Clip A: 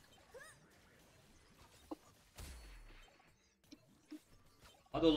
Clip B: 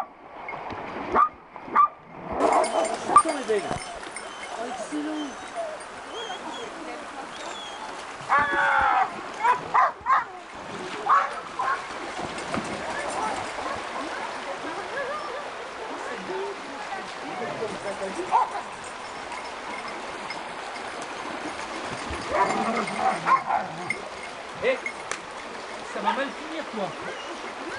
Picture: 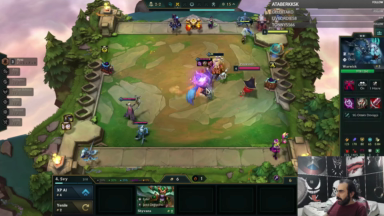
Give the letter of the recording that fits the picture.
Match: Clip A